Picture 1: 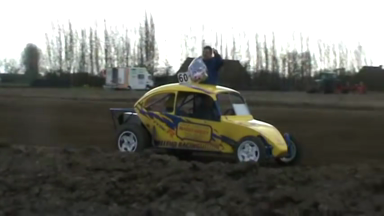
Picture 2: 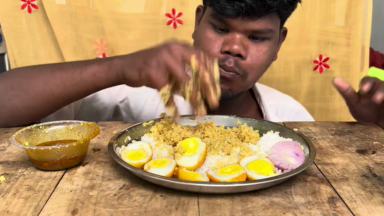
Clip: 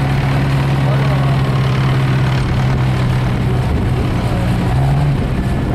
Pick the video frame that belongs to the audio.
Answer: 1